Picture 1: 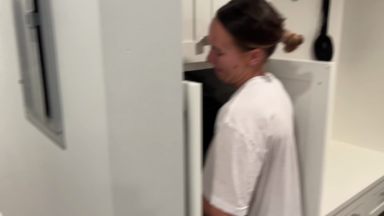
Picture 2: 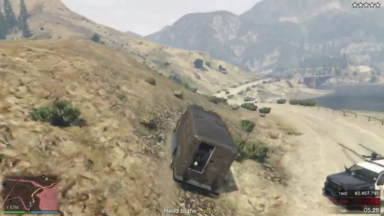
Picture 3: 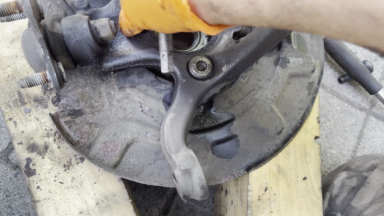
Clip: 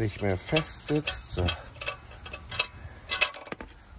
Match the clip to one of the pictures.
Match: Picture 3